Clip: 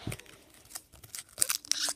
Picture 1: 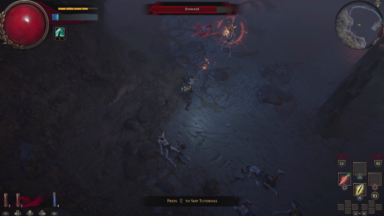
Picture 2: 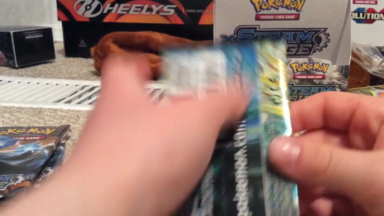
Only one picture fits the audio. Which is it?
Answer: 2